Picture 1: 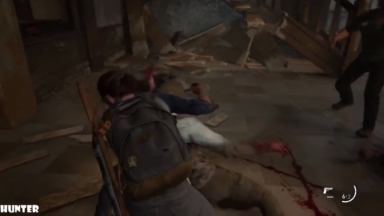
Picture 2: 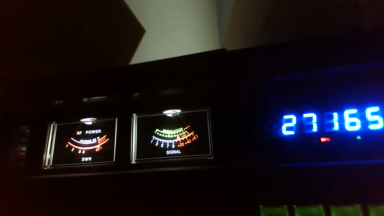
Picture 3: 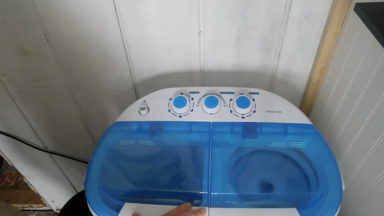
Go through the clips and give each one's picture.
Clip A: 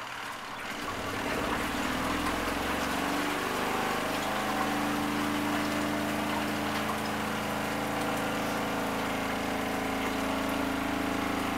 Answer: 3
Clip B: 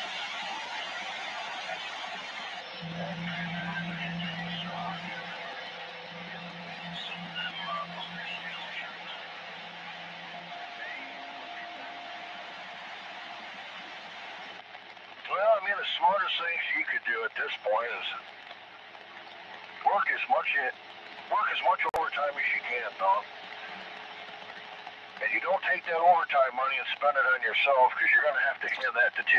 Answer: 2